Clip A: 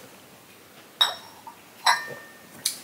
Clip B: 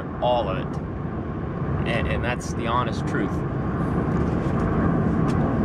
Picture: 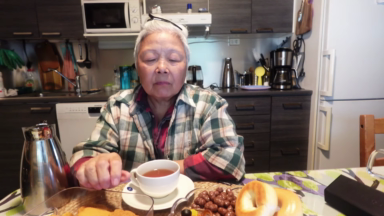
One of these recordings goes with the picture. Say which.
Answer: A